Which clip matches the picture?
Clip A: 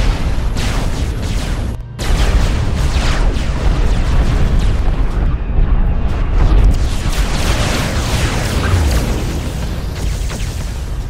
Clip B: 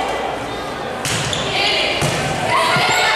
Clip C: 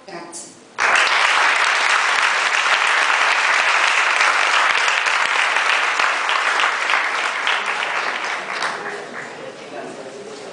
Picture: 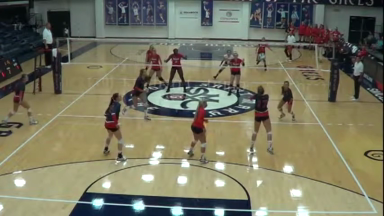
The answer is B